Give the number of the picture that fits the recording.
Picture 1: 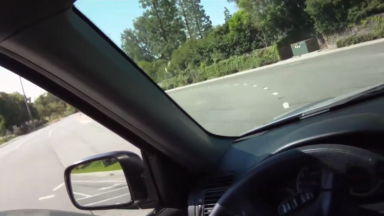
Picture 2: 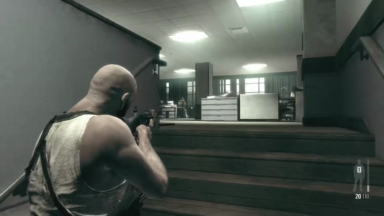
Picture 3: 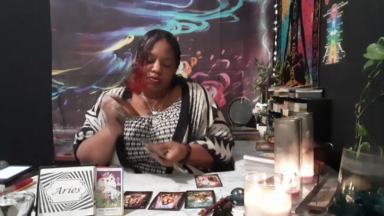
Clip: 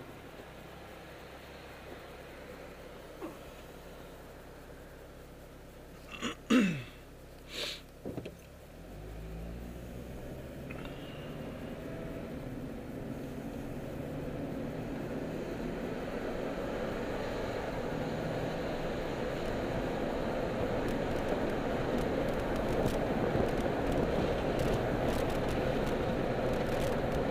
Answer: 1